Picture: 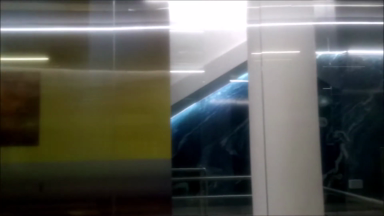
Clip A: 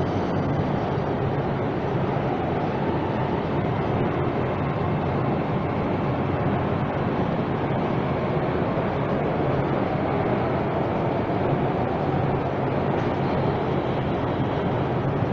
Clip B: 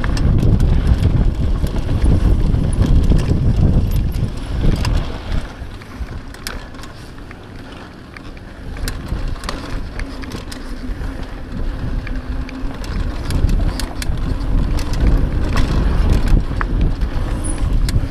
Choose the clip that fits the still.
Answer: A